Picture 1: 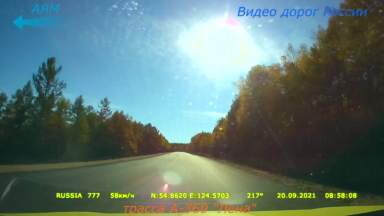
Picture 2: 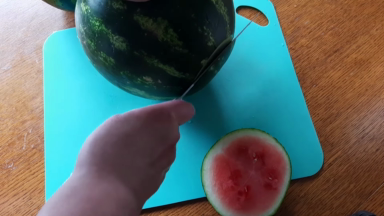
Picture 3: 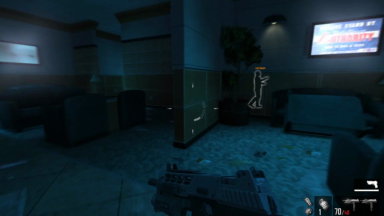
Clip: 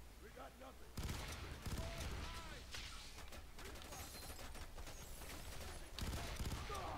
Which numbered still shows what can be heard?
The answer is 3